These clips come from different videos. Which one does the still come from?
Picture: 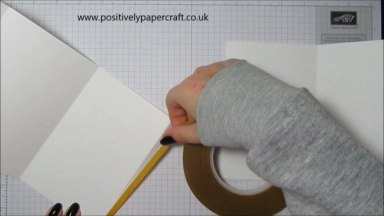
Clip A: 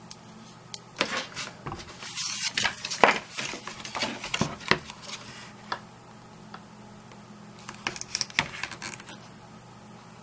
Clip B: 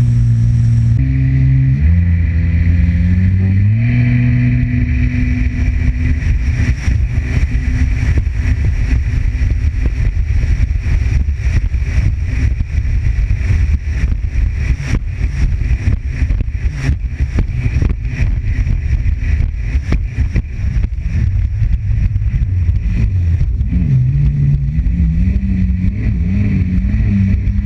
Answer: A